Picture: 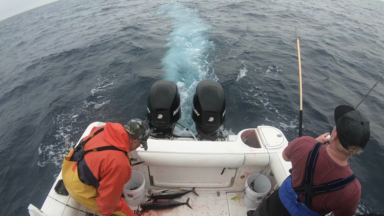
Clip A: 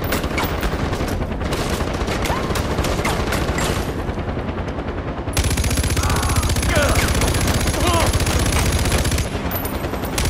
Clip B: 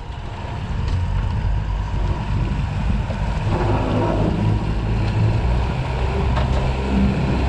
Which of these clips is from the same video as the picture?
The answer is B